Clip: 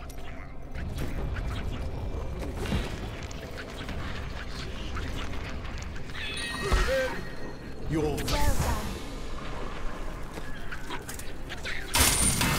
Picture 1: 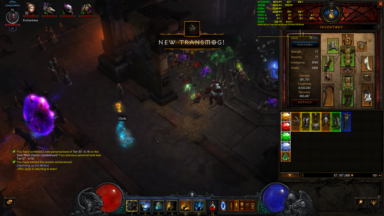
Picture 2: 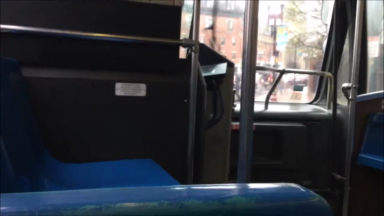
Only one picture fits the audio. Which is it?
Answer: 1